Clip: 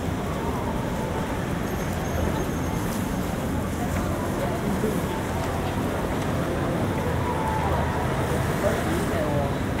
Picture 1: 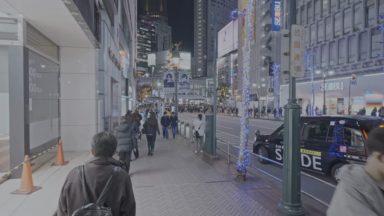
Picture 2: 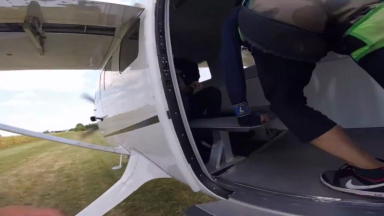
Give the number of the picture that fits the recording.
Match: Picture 1